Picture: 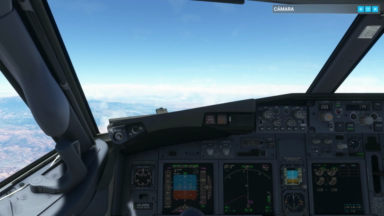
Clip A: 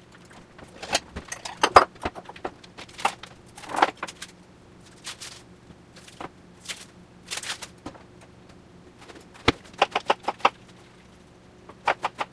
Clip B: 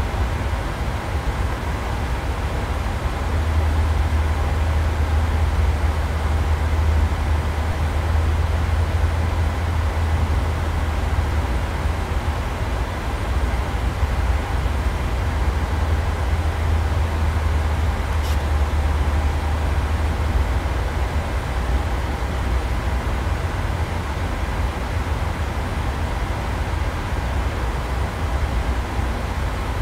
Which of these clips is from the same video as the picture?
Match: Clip B